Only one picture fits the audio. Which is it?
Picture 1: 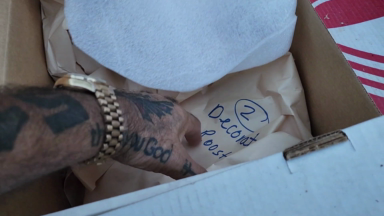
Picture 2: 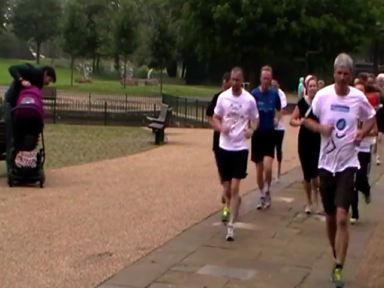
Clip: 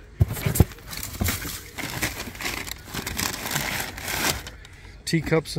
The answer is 1